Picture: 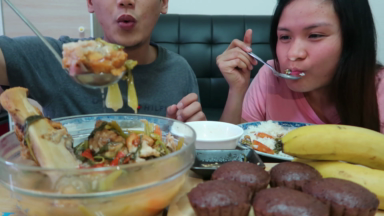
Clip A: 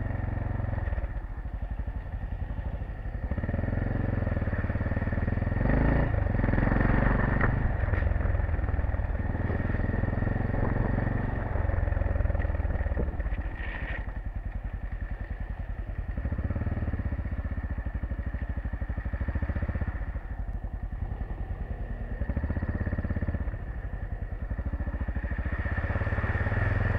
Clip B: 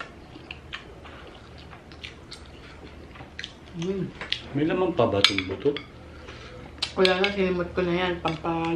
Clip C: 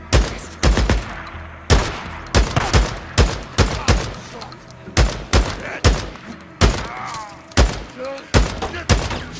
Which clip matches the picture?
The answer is B